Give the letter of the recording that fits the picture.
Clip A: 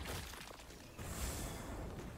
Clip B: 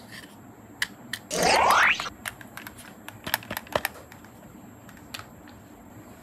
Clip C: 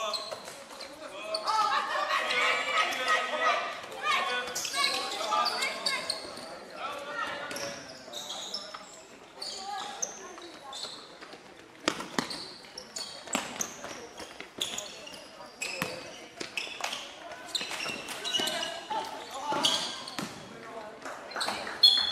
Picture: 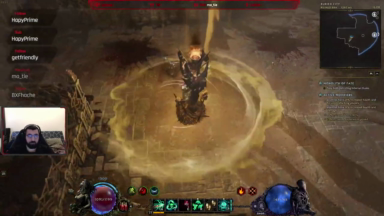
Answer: A